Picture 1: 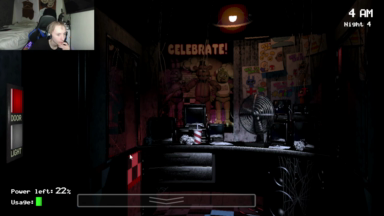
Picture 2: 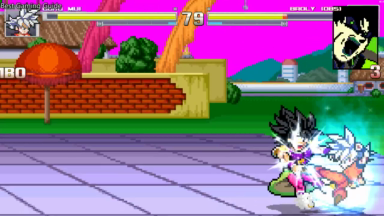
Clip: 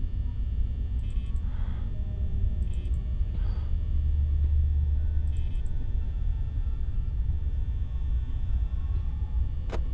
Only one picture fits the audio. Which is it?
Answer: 1